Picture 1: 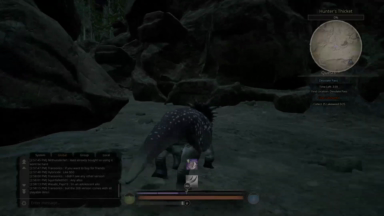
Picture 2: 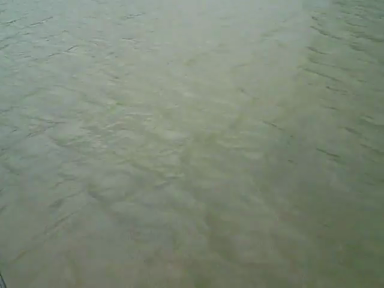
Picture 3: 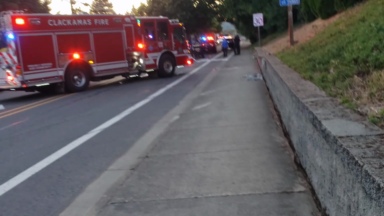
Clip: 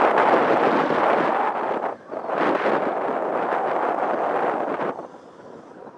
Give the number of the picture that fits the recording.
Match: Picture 2